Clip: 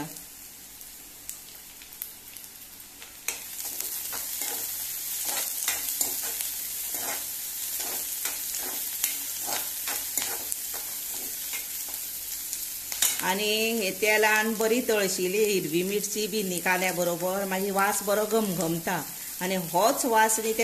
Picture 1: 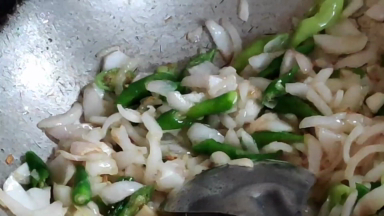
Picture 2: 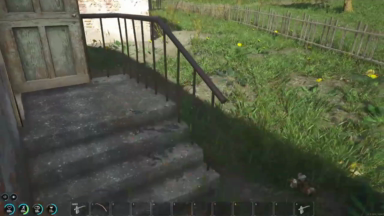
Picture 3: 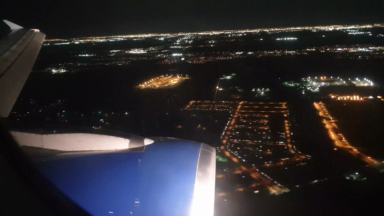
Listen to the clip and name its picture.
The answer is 1